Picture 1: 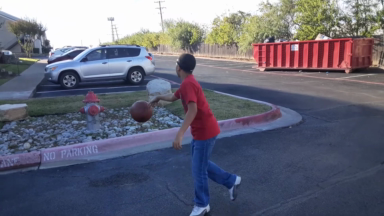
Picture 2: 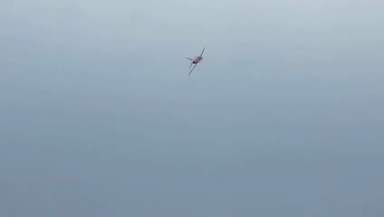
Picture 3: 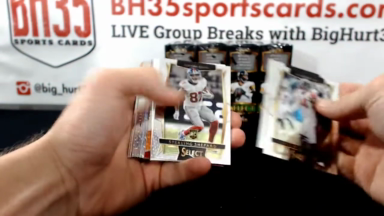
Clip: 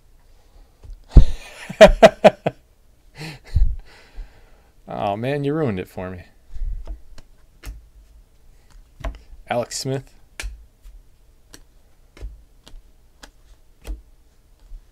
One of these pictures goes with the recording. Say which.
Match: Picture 3